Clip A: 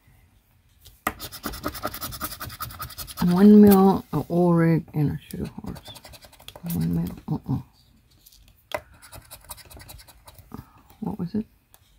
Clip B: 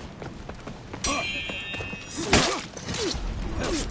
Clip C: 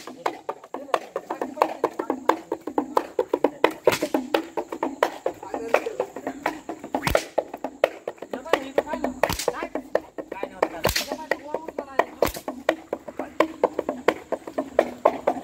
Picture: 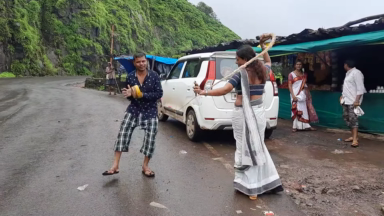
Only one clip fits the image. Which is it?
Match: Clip C